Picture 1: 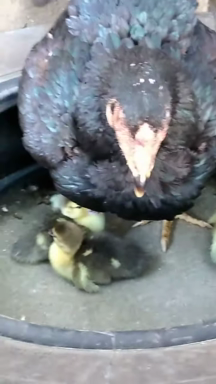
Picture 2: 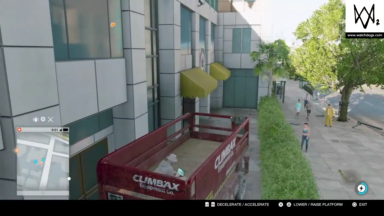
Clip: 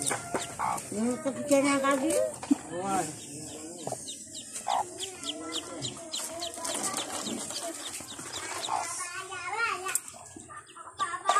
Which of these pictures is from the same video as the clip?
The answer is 1